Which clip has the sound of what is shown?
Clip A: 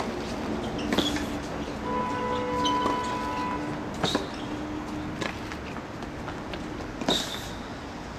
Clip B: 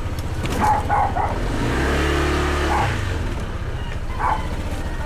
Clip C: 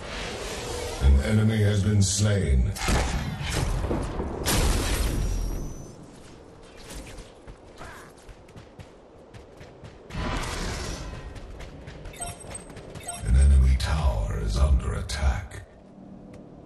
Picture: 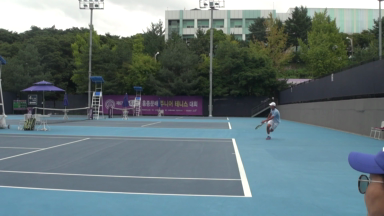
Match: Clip A